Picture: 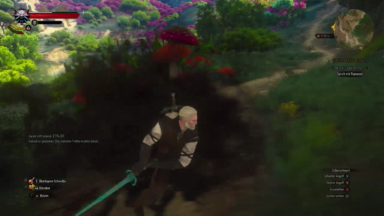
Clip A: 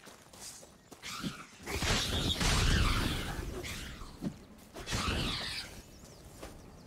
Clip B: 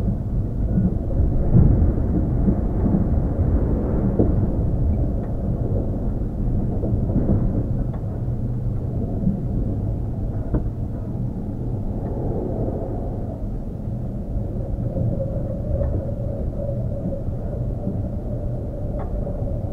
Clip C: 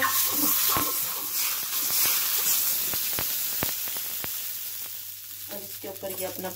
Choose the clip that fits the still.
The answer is A